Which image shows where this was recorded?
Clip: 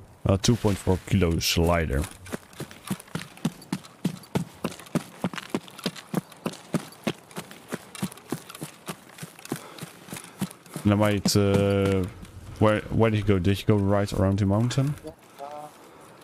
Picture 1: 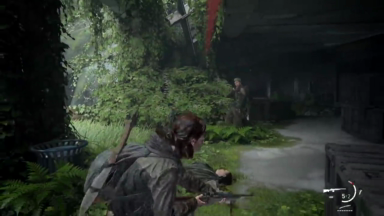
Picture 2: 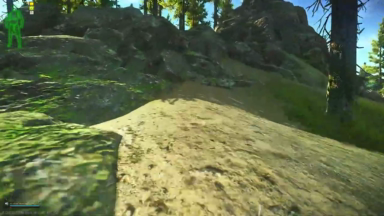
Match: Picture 2